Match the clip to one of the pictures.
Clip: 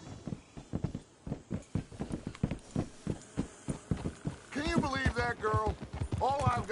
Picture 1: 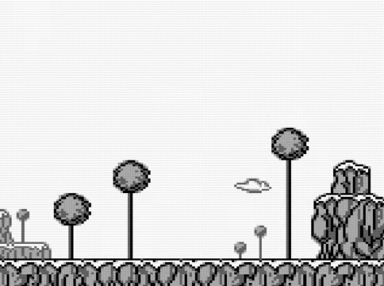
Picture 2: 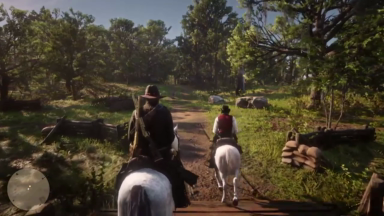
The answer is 2